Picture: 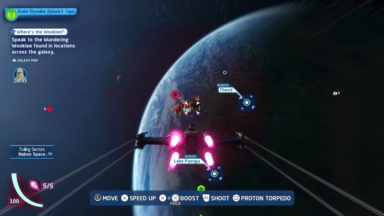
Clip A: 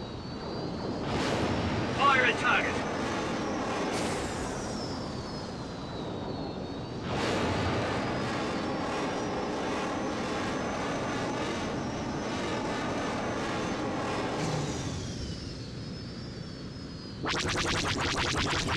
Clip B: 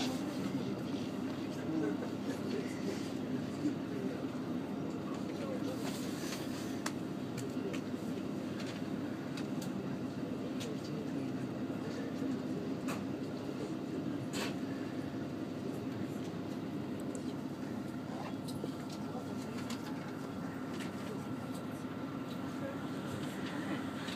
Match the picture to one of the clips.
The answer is A